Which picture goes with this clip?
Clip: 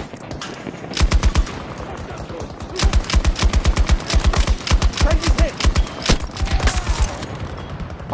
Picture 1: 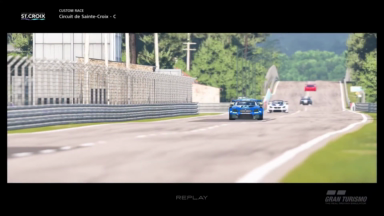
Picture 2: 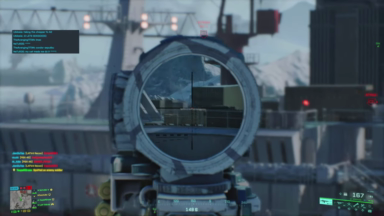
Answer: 2